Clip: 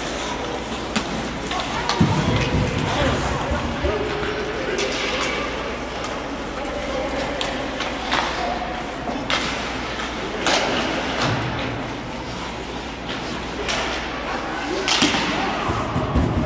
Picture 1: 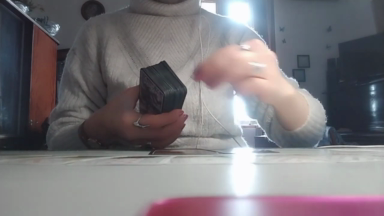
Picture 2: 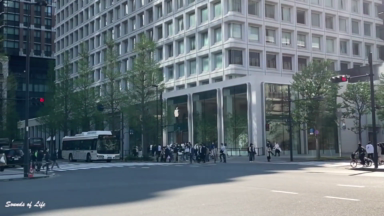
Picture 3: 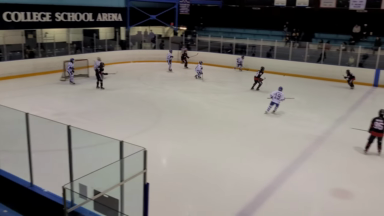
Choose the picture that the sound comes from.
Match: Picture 3